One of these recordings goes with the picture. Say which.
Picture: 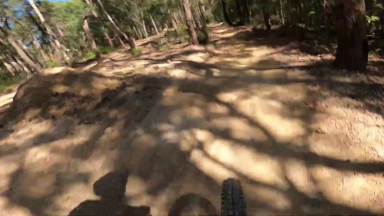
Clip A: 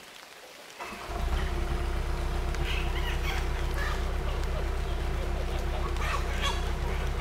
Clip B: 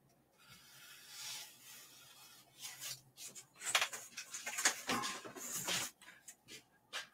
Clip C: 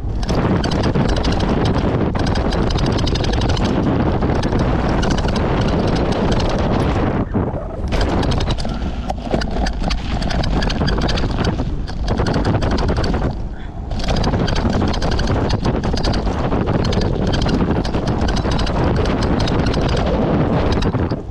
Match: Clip C